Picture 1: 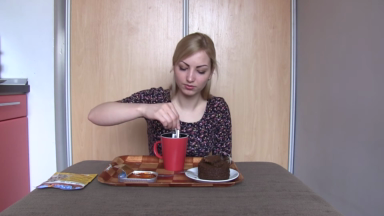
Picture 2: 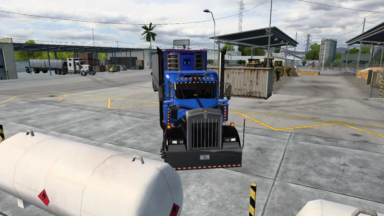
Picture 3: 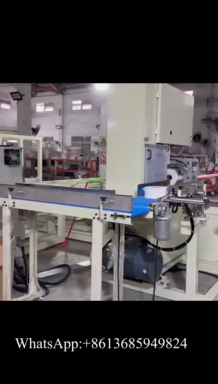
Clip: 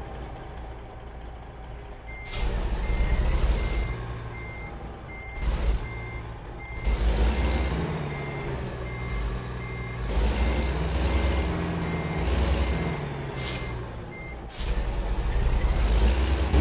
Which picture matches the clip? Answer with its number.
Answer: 2